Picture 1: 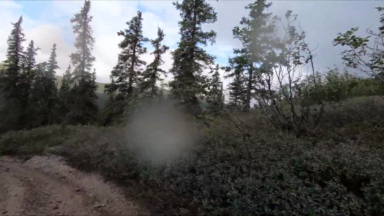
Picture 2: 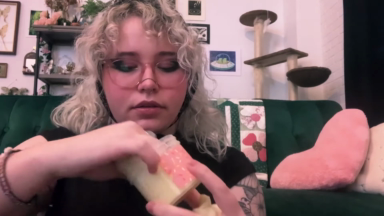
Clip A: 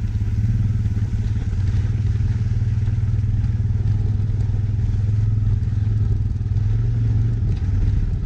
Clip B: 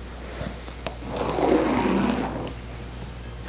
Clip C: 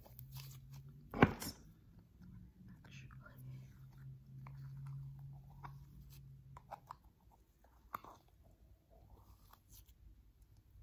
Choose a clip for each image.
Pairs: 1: A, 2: C